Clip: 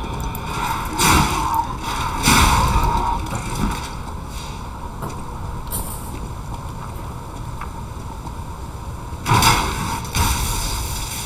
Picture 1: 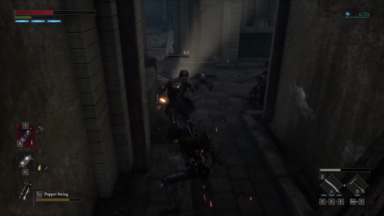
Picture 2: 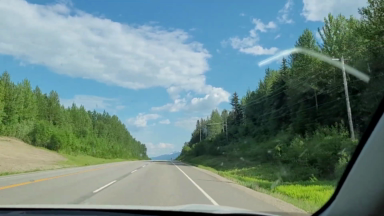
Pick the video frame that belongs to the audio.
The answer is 1